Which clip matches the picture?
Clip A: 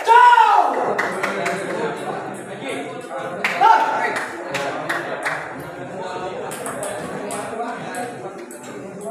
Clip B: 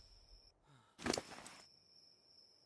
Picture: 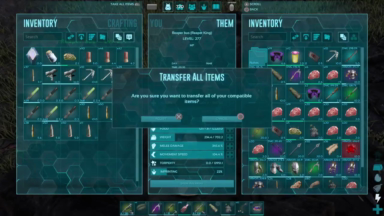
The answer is B